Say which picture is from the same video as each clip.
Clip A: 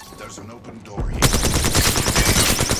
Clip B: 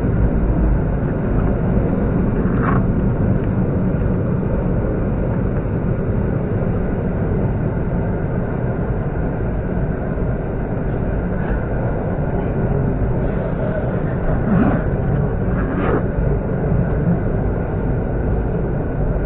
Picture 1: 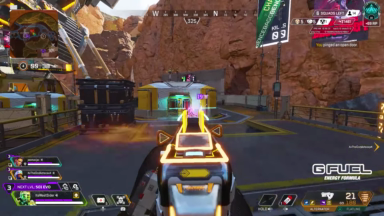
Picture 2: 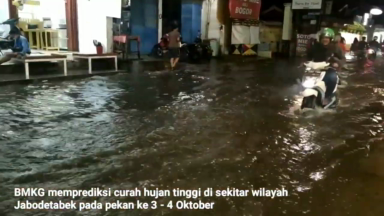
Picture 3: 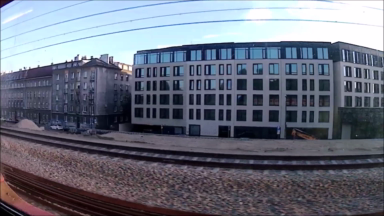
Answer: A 1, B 3